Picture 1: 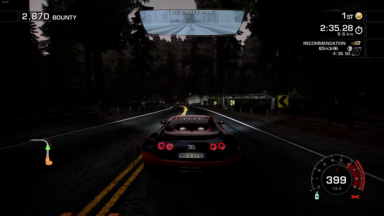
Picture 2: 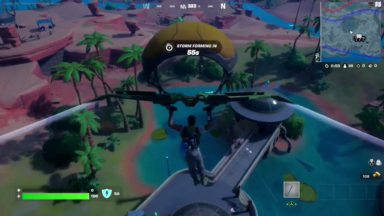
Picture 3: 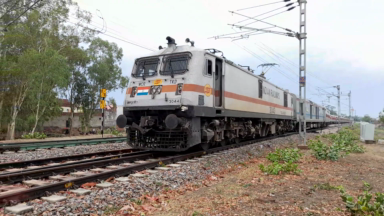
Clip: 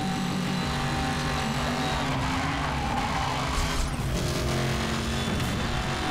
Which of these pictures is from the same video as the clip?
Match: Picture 1